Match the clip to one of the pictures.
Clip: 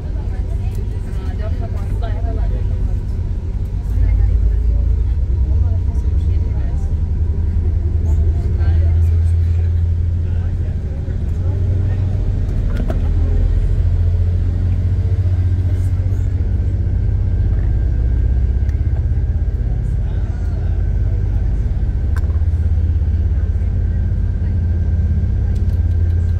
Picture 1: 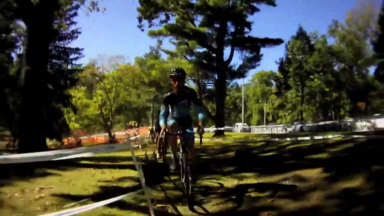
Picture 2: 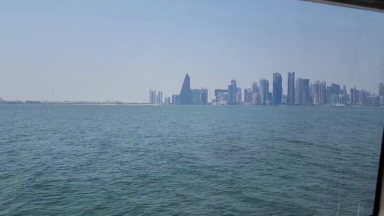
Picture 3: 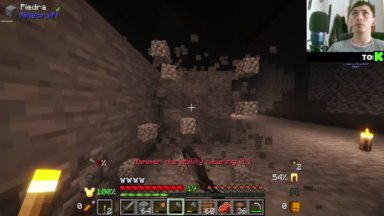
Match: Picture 2